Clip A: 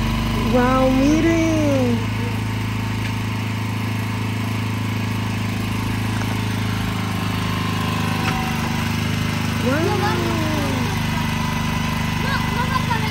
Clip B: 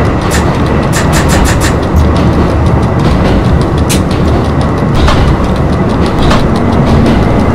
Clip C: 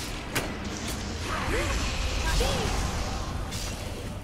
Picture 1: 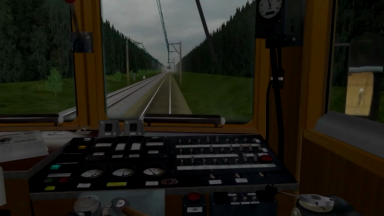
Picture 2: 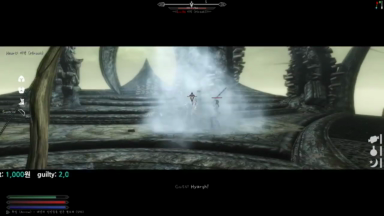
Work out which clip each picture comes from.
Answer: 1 B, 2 C